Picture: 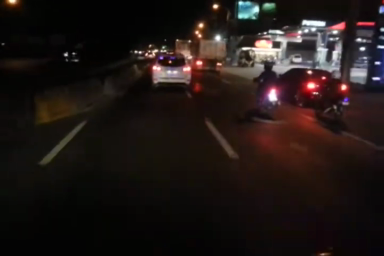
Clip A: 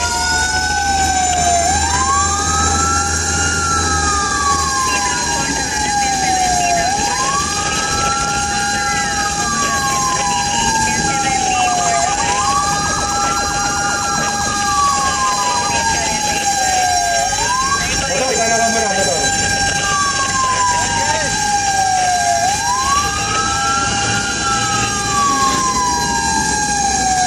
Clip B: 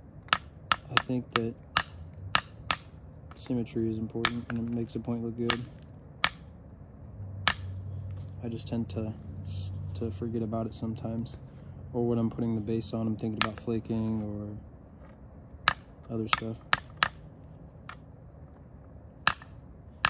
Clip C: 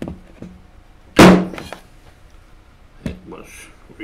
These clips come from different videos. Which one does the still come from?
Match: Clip A